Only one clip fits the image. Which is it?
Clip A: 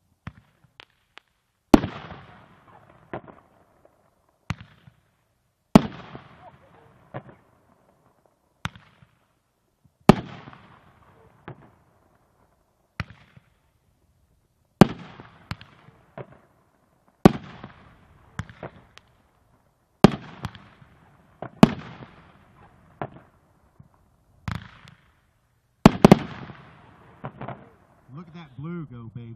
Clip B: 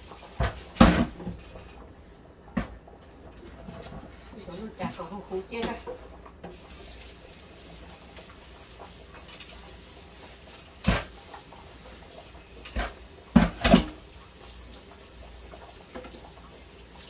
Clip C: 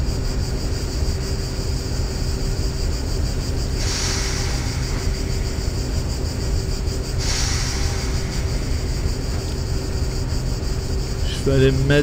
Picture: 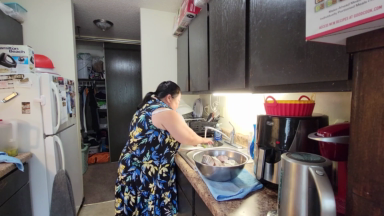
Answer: B